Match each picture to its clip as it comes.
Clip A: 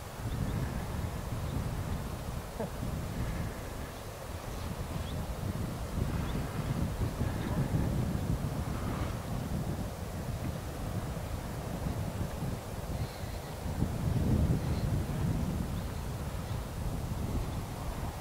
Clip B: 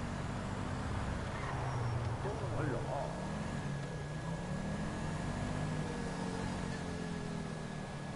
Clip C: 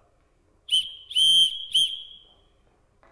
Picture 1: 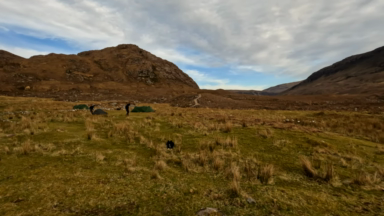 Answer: A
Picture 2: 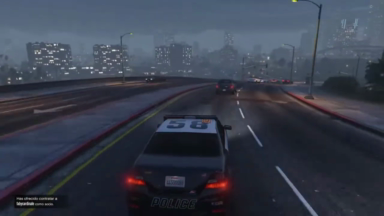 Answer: B